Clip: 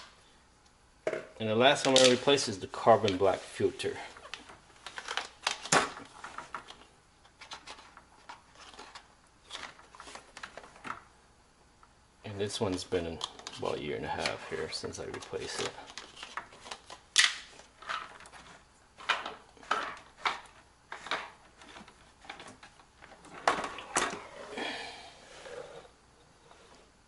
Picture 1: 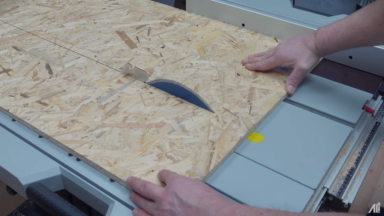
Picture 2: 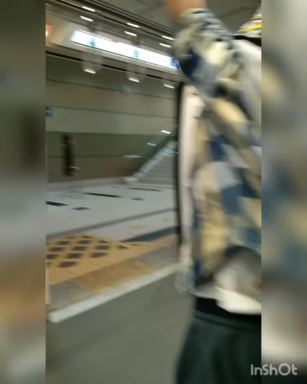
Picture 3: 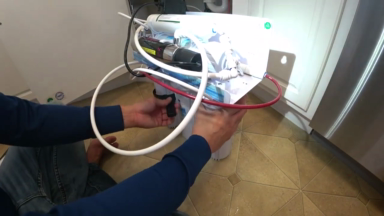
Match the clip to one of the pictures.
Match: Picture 3